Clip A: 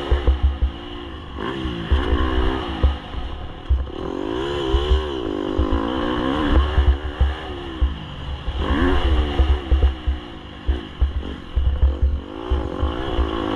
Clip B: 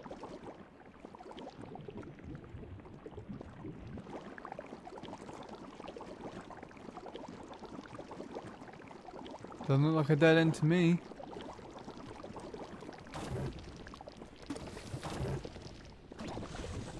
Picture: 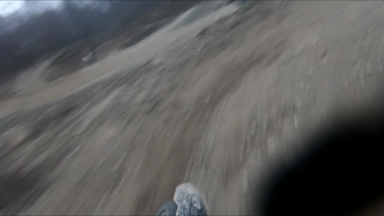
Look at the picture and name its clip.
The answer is A